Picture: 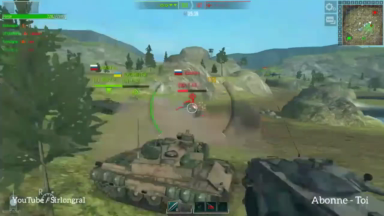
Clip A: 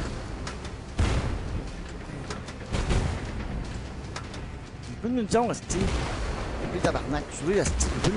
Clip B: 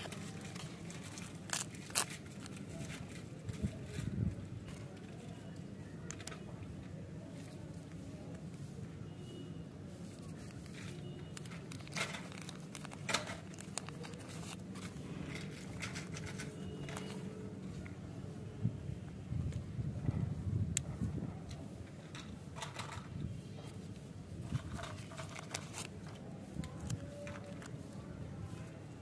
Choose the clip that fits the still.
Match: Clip A